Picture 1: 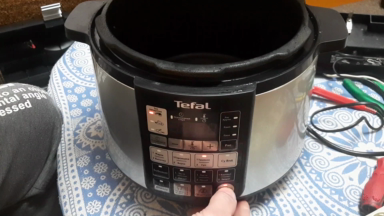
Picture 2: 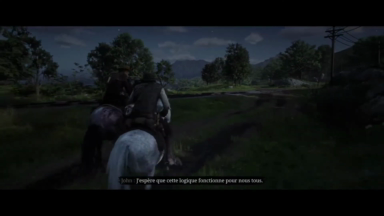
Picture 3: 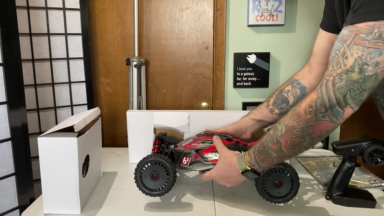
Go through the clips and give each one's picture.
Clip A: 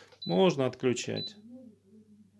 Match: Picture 1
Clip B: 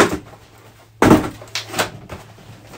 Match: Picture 3